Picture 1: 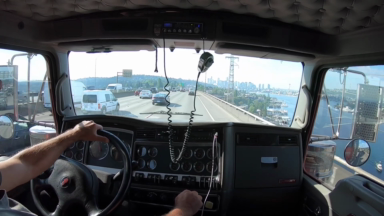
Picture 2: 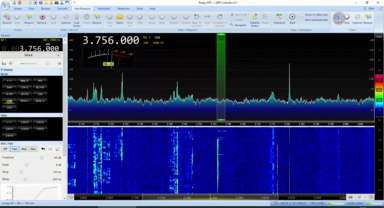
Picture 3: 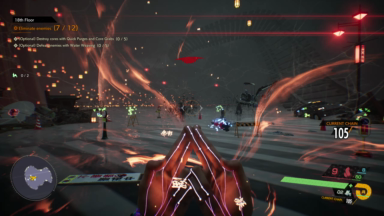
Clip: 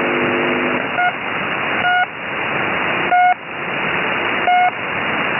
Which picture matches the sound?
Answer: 2